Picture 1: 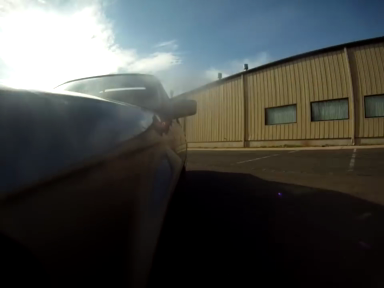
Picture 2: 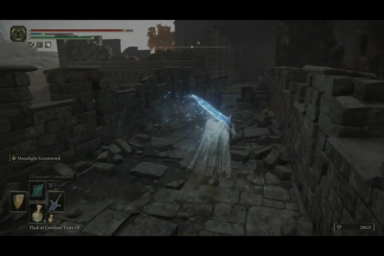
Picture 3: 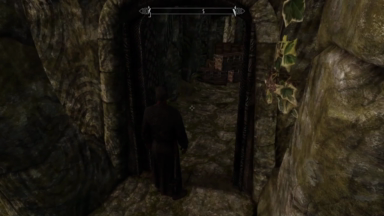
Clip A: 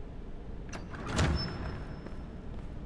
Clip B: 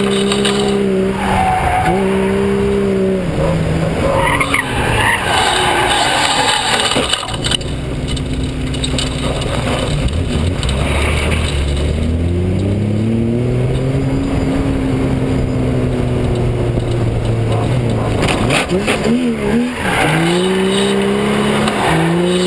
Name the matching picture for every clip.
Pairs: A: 3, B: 1